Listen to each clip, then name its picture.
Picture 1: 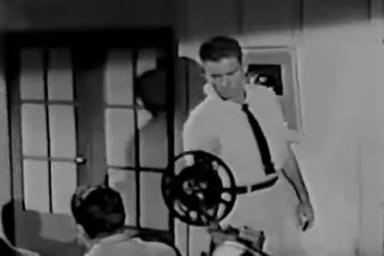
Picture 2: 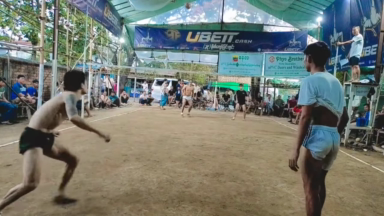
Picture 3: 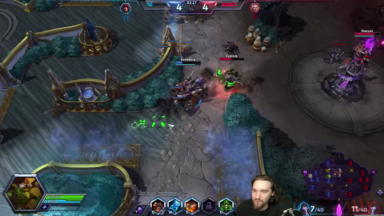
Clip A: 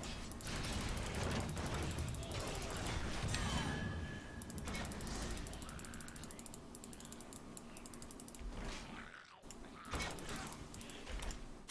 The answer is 3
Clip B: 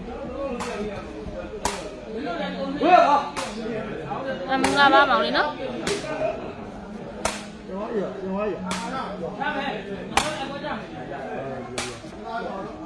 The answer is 2